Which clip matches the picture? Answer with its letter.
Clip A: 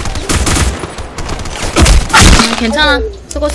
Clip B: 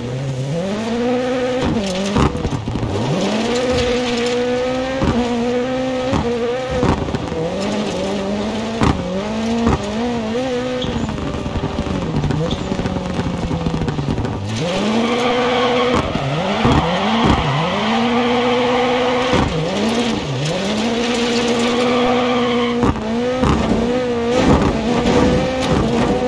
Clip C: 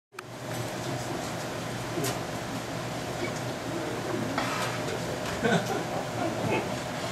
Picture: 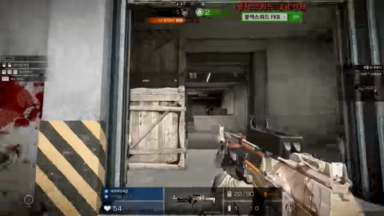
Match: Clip A